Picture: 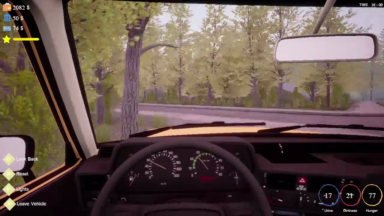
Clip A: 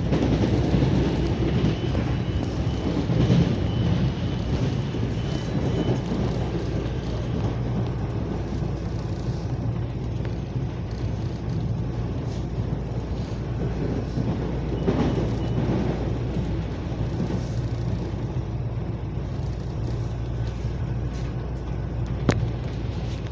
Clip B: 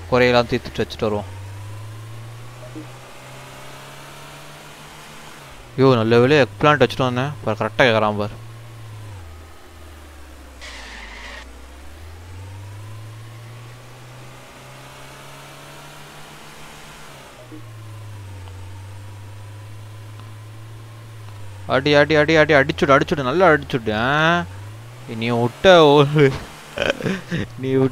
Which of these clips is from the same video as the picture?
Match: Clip B